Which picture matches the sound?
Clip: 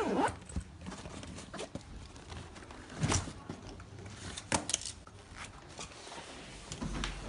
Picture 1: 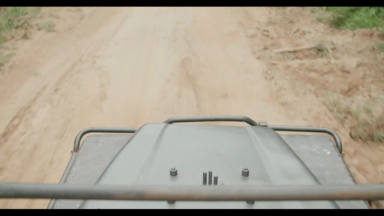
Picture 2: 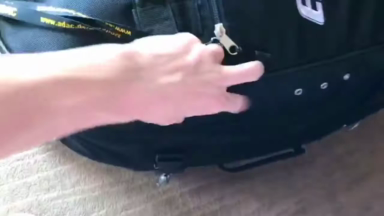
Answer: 2